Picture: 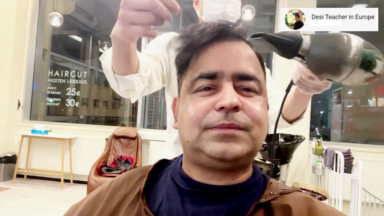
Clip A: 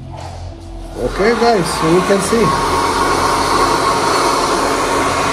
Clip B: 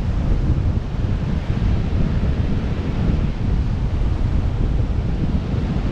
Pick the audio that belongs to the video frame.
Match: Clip A